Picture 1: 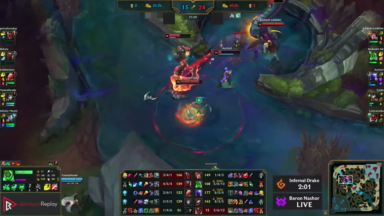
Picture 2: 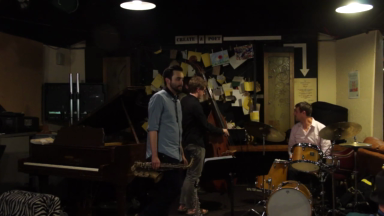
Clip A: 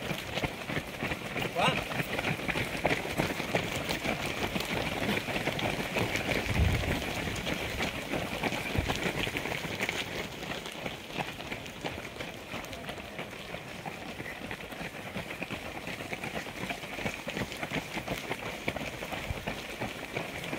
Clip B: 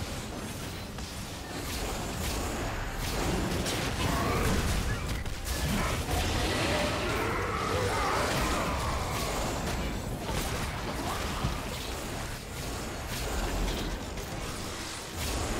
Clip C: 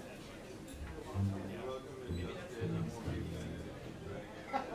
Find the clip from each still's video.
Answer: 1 B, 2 C